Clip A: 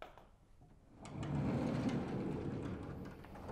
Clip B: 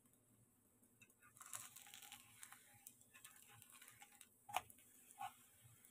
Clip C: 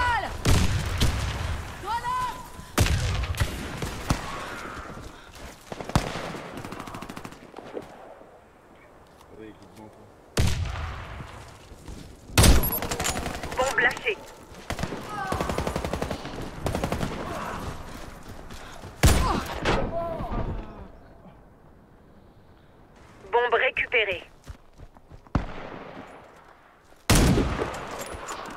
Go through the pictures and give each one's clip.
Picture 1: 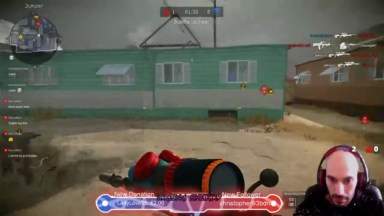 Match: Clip C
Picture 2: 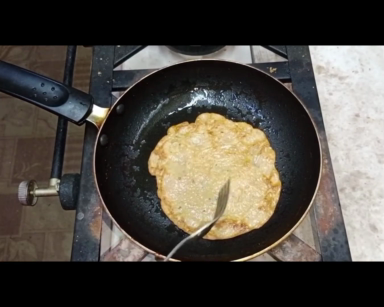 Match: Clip B